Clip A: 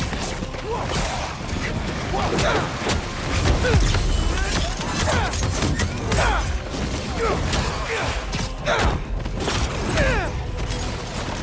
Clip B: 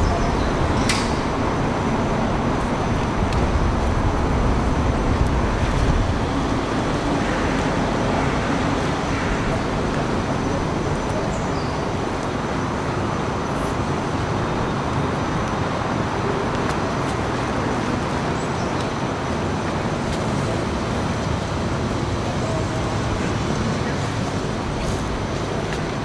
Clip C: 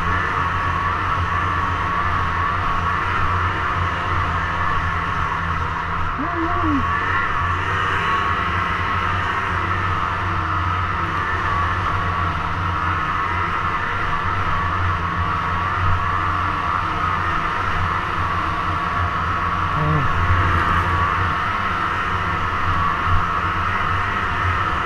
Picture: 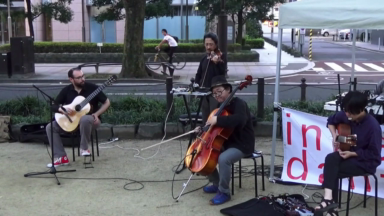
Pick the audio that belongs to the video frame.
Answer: B